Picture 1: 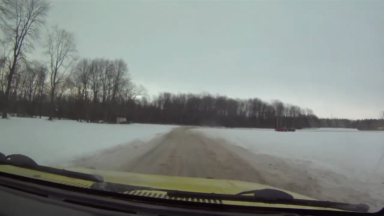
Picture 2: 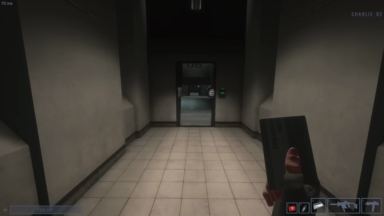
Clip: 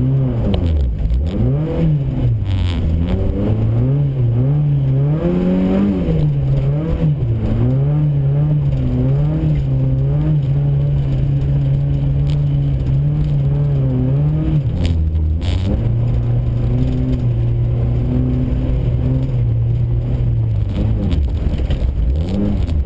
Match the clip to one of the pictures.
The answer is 1